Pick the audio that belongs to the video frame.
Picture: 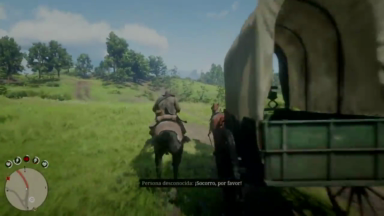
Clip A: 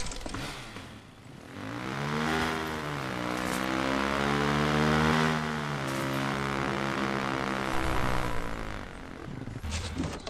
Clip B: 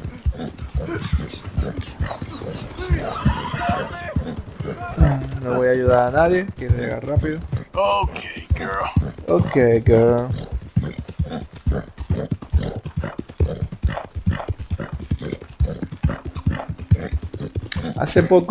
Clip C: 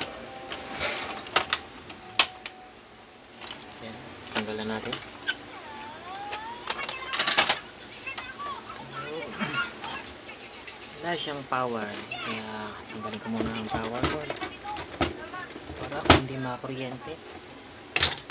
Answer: B